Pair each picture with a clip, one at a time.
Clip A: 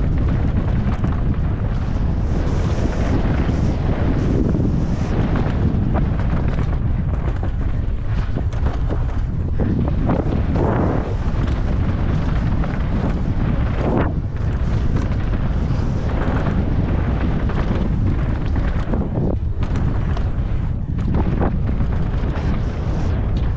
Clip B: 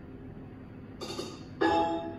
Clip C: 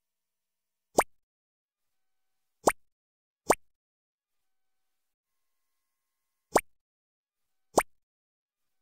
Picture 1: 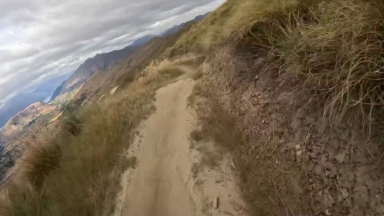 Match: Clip A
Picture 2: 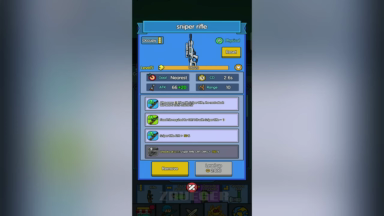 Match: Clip C